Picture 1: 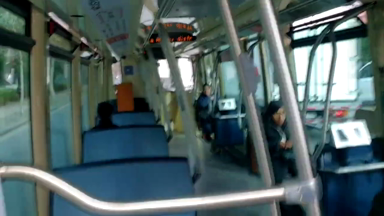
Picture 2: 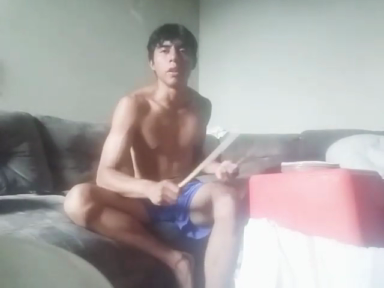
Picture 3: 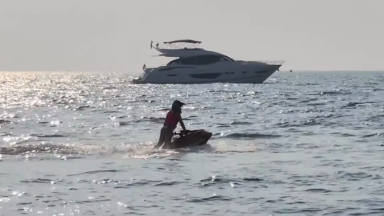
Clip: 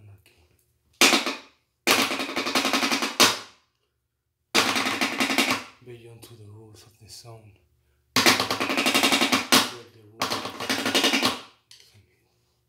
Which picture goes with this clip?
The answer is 2